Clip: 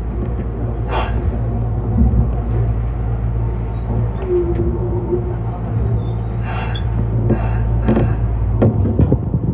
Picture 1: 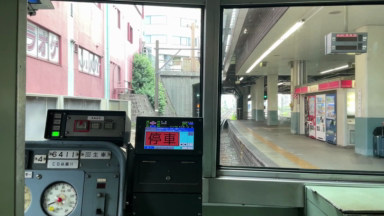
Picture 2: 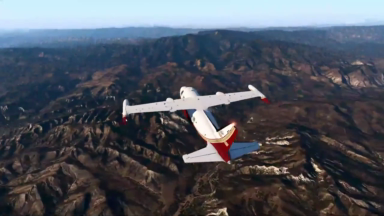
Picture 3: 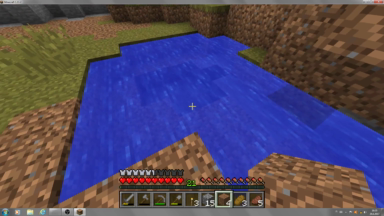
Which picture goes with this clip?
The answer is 1